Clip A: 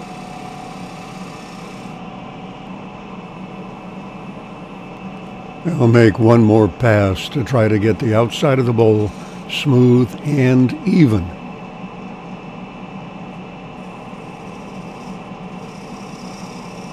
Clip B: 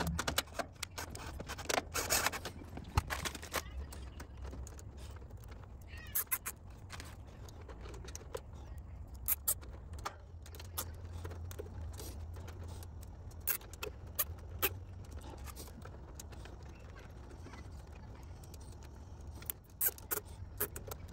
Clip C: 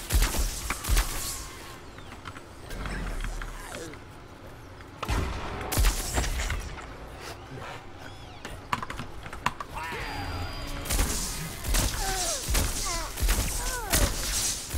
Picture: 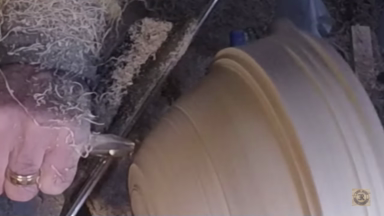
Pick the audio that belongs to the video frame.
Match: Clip A